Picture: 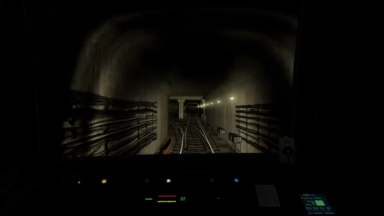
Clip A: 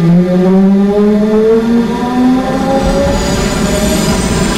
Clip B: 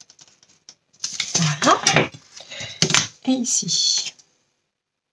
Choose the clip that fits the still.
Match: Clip A